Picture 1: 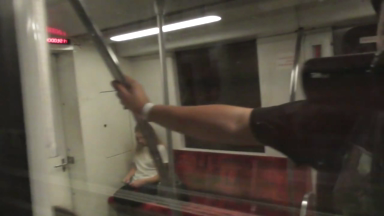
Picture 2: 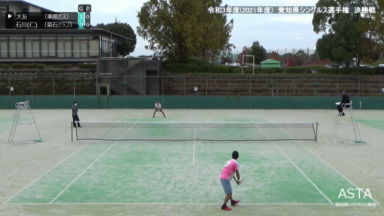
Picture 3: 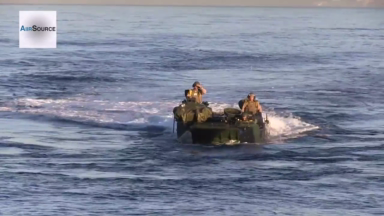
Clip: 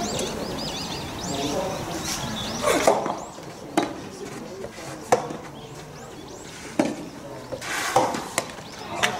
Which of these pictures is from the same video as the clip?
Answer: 2